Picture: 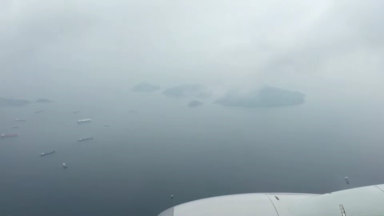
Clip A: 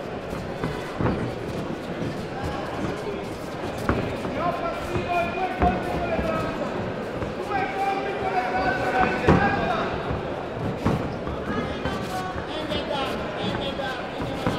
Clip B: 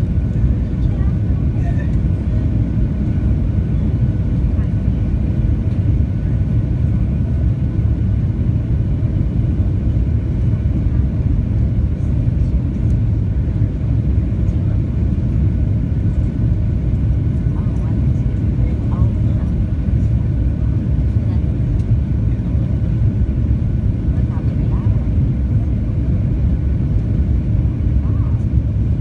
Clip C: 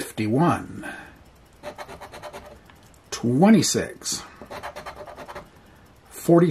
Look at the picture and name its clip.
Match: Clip B